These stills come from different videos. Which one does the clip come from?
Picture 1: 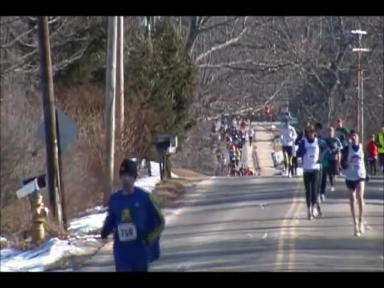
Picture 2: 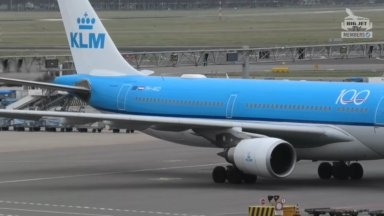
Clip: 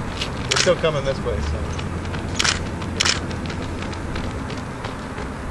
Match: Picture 1